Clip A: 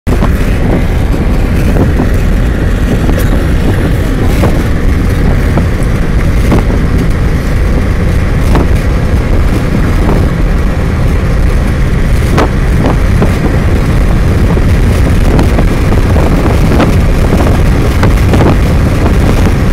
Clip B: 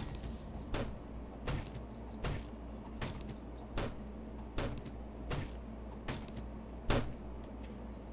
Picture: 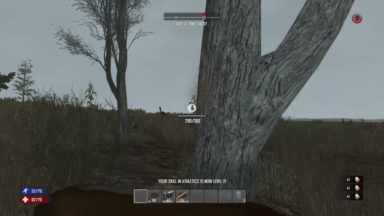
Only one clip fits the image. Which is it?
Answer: B